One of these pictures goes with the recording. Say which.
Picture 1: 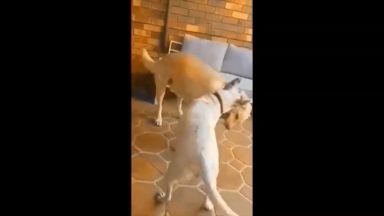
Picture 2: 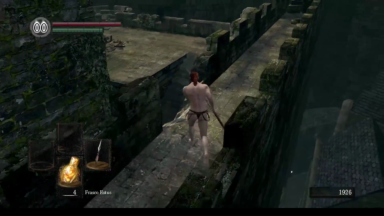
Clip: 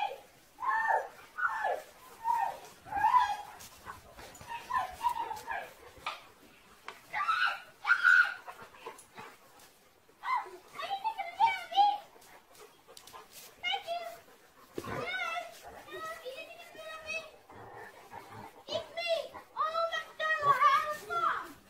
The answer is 1